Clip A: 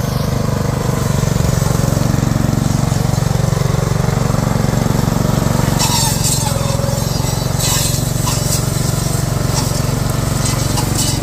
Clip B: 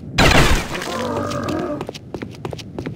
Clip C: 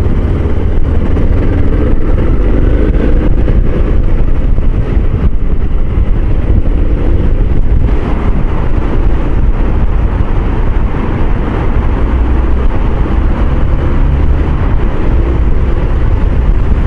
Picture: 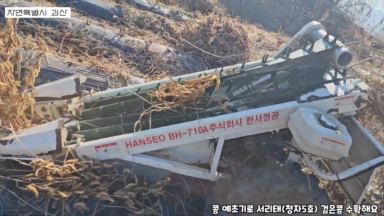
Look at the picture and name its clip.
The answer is A